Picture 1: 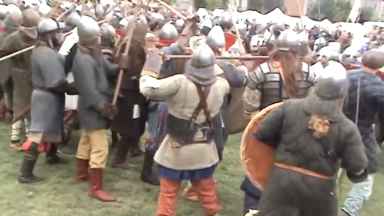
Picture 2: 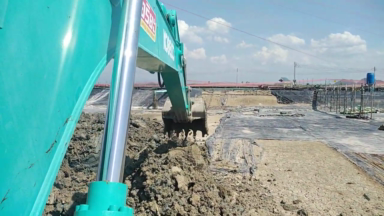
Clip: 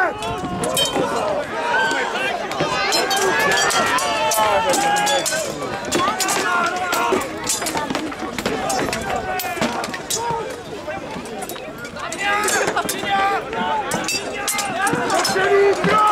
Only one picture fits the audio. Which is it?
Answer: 1